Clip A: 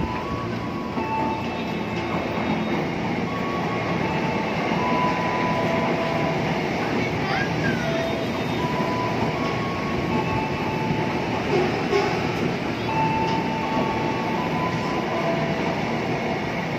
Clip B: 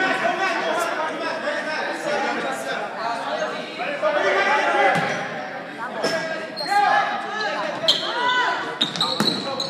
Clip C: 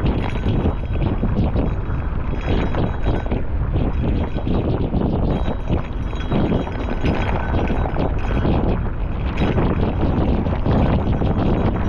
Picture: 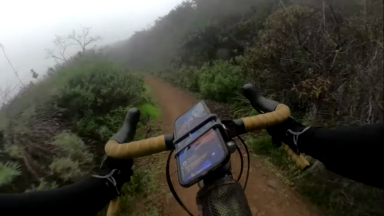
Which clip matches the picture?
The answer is C